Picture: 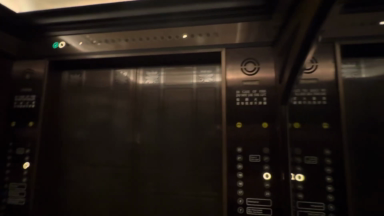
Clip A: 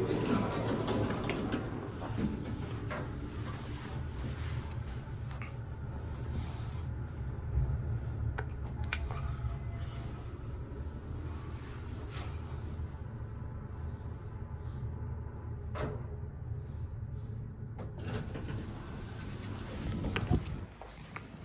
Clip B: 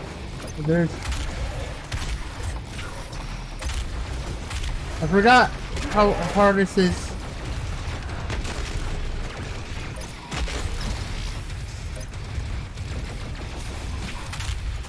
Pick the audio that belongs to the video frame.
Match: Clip A